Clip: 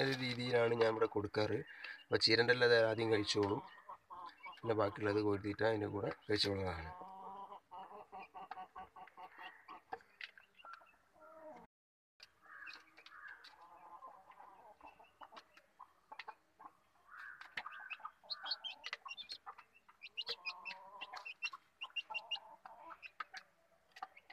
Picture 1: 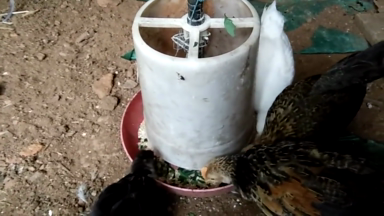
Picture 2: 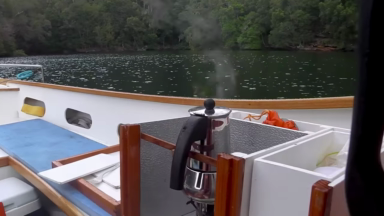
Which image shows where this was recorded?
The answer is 1